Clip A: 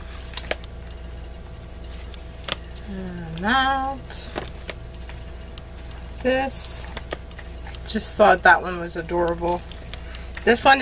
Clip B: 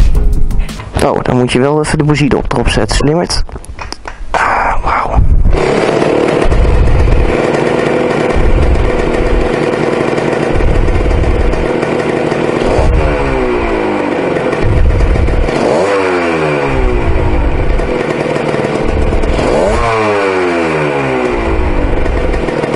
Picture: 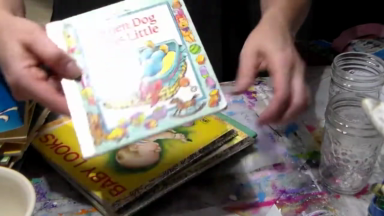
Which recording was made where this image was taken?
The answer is A